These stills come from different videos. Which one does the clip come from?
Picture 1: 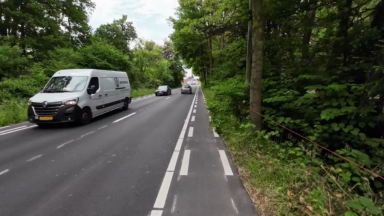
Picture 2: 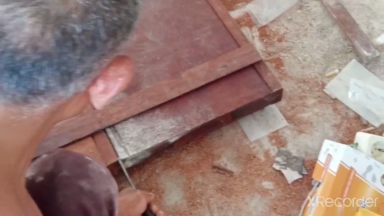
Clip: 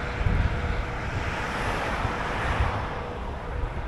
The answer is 1